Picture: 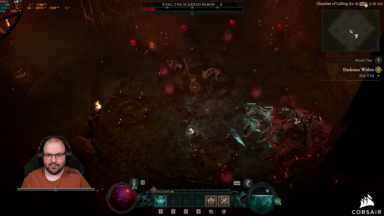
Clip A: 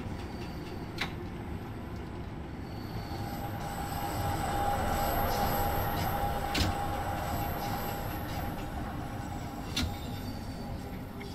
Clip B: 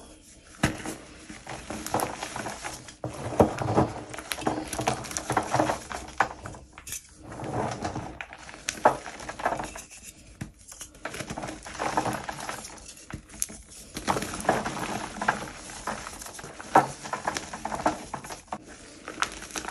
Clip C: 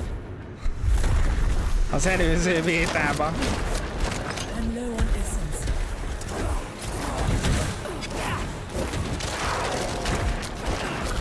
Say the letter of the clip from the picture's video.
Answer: C